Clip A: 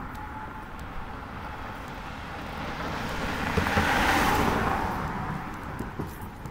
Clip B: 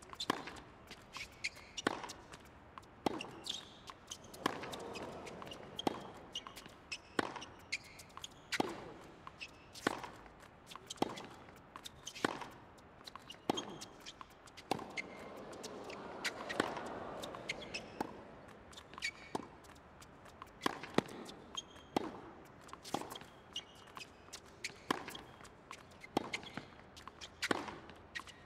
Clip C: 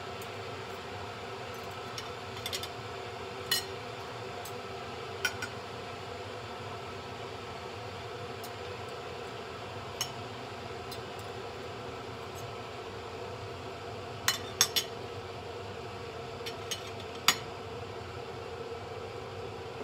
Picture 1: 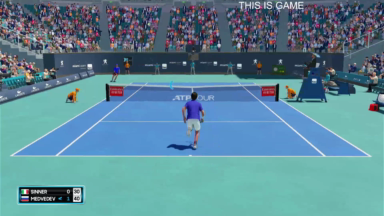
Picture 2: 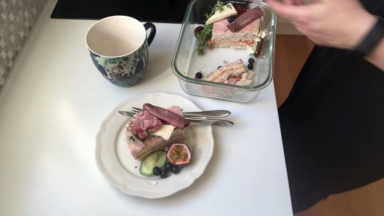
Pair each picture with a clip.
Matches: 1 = B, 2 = C